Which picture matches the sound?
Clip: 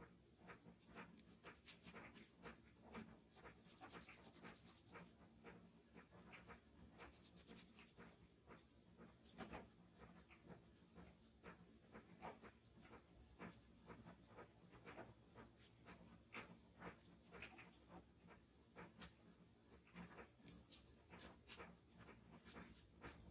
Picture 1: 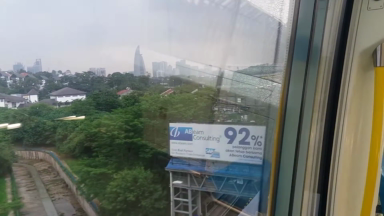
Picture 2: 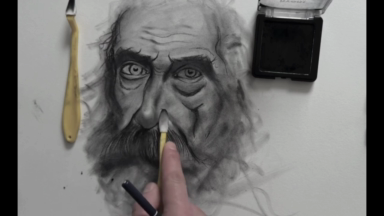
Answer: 2